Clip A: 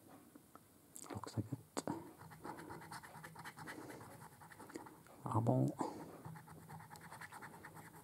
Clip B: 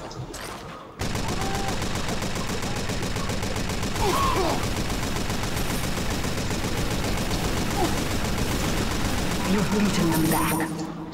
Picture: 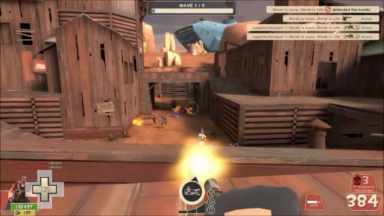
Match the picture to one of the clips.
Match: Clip B